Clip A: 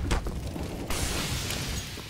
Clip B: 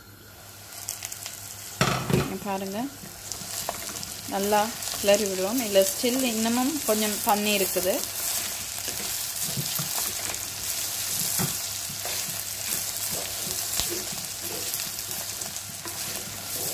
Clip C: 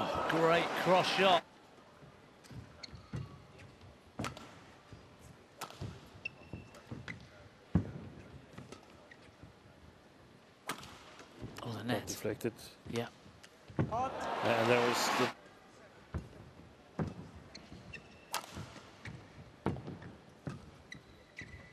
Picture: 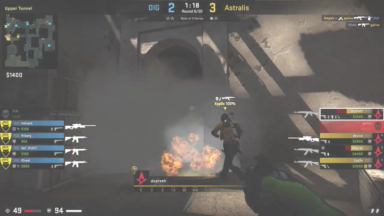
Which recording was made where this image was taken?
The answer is A